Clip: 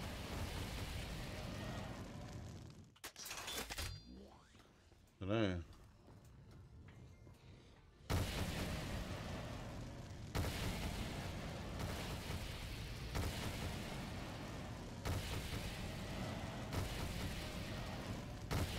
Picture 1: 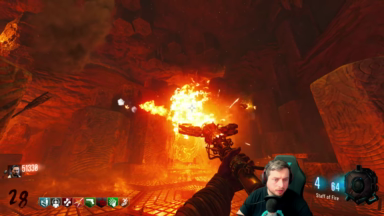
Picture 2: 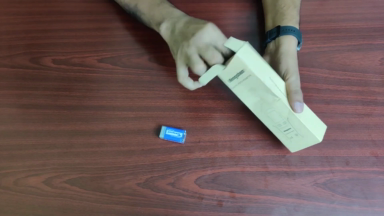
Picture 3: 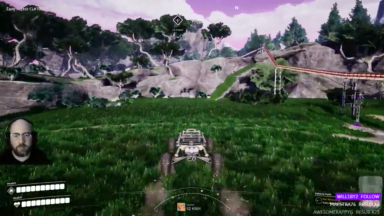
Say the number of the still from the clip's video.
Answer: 1